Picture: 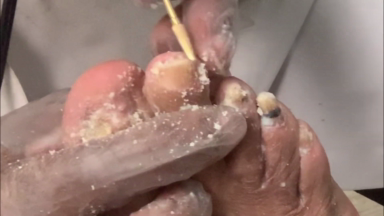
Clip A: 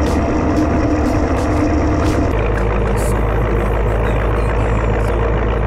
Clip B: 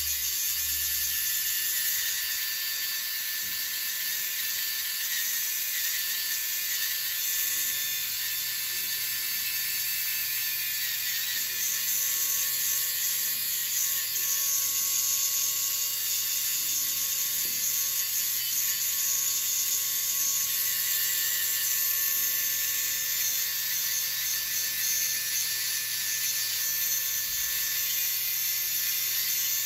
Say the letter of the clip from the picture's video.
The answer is B